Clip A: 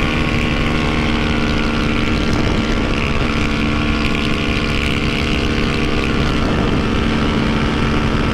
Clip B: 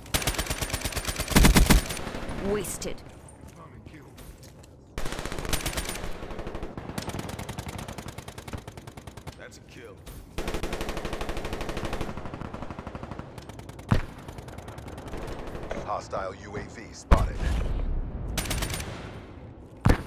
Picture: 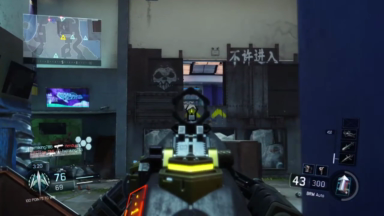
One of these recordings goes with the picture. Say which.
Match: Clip B